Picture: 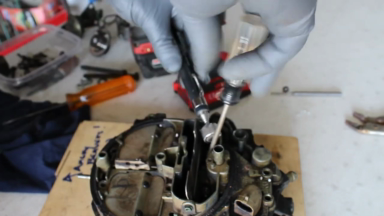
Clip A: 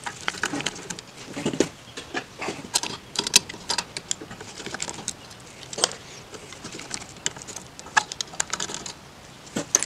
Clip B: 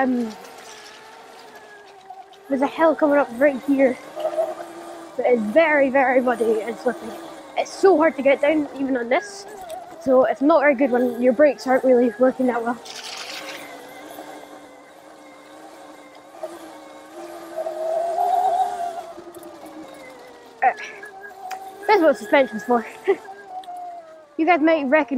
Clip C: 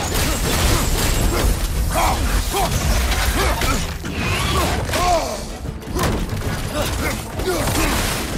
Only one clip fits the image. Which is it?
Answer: A